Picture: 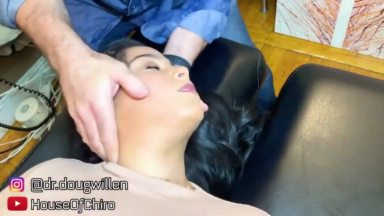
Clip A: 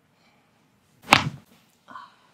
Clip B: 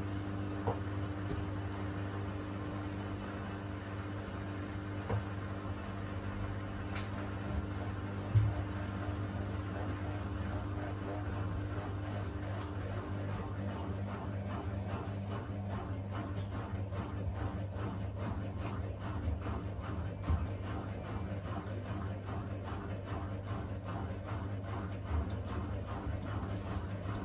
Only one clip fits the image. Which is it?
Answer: A